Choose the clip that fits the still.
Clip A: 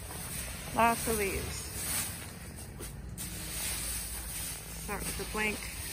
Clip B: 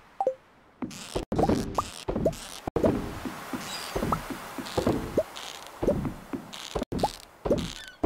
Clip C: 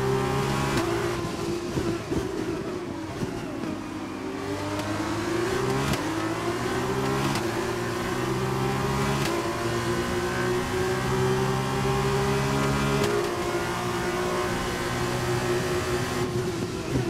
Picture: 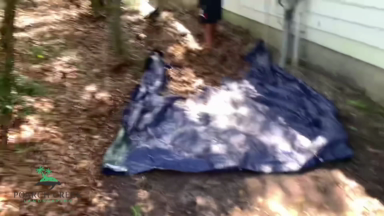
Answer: A